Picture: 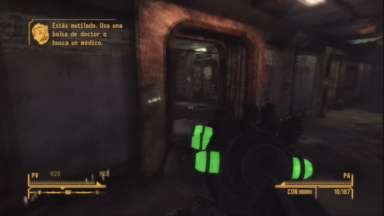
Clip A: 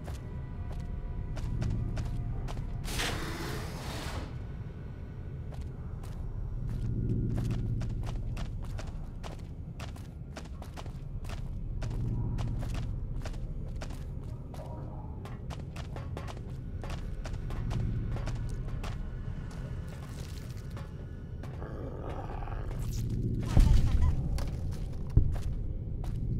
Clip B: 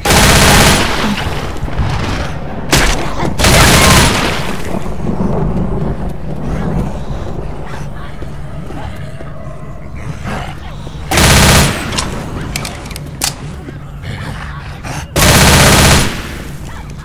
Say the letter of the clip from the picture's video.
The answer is A